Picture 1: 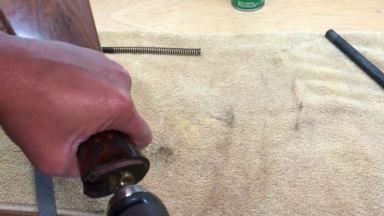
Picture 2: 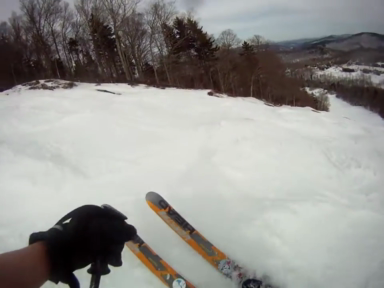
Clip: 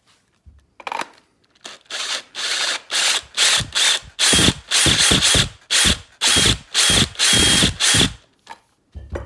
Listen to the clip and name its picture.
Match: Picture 1